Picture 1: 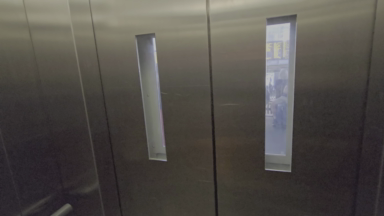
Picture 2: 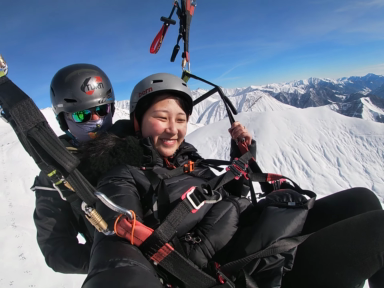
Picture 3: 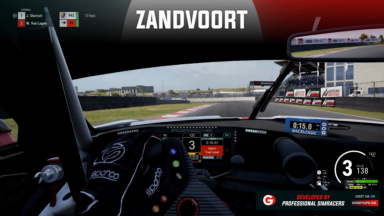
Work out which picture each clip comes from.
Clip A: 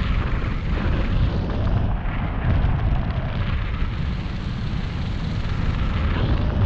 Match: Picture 2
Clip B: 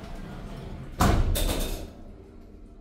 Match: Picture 1